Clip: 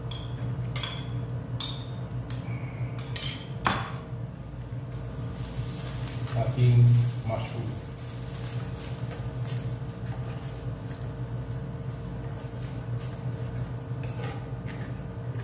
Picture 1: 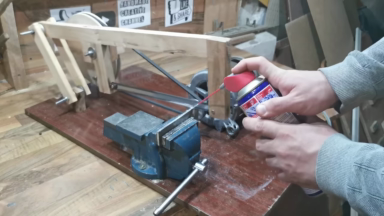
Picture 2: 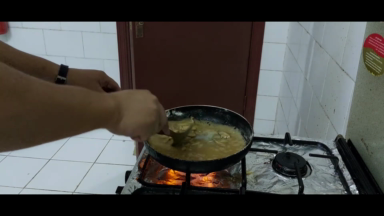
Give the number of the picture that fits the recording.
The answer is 2